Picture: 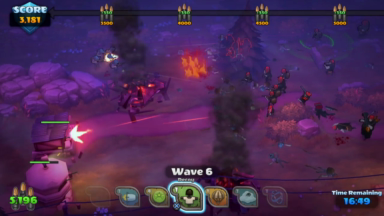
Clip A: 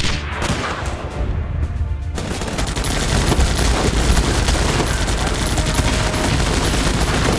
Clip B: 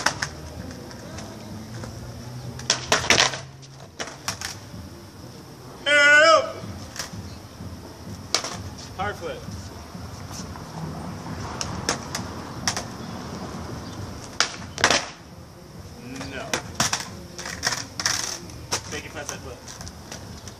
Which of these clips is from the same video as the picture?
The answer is A